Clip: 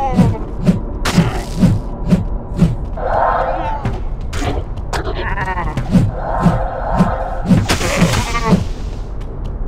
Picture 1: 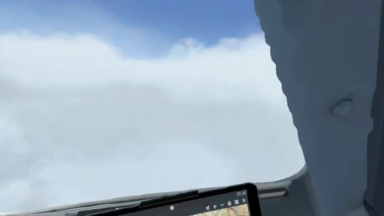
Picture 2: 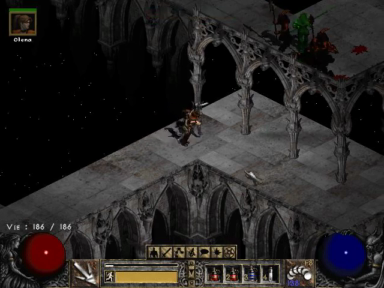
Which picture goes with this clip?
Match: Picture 2